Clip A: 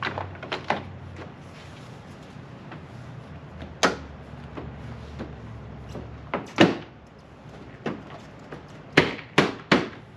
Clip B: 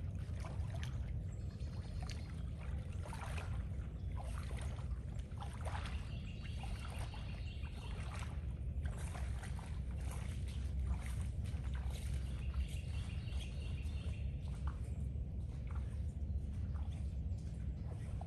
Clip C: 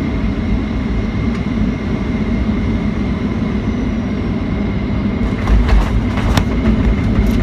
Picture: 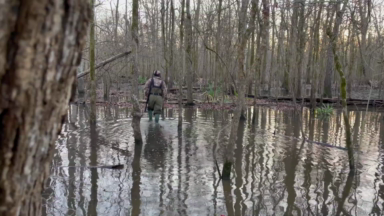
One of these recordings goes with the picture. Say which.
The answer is B